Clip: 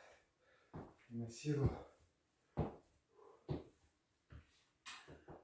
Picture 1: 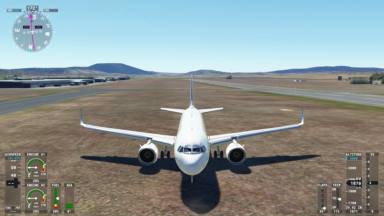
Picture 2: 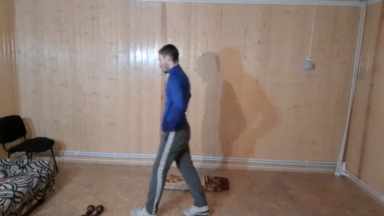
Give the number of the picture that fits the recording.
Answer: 2